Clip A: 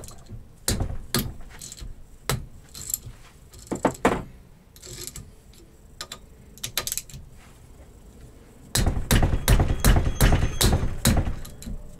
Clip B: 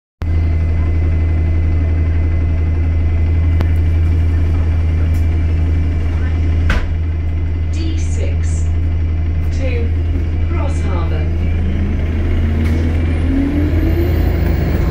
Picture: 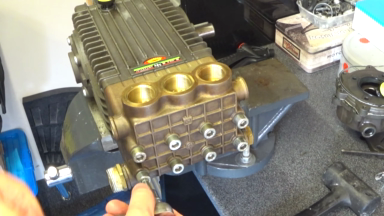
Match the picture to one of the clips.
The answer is A